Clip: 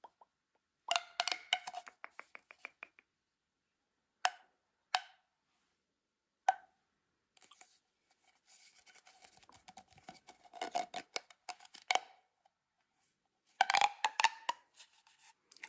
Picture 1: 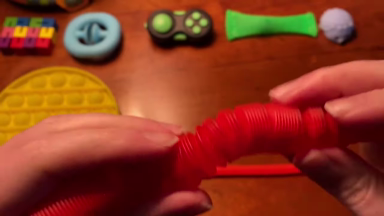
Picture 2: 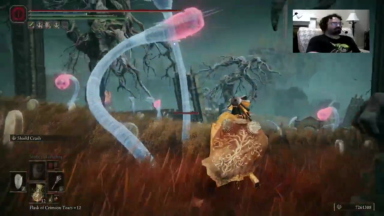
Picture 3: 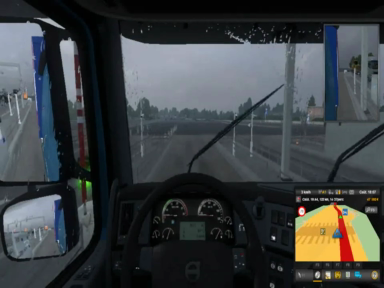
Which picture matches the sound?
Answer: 1